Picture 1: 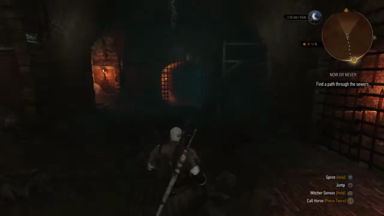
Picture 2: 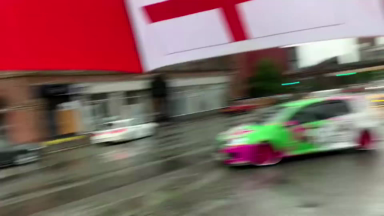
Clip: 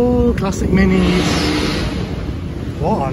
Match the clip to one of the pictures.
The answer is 2